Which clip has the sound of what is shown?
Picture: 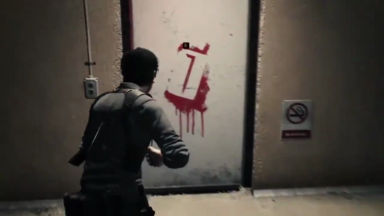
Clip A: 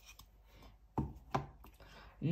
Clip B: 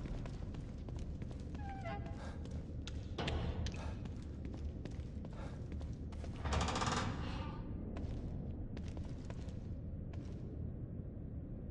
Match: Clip B